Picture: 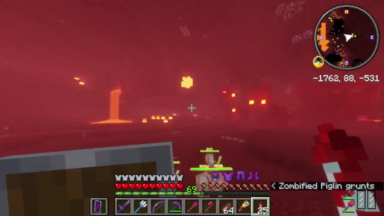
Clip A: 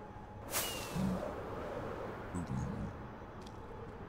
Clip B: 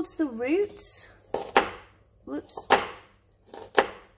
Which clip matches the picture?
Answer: A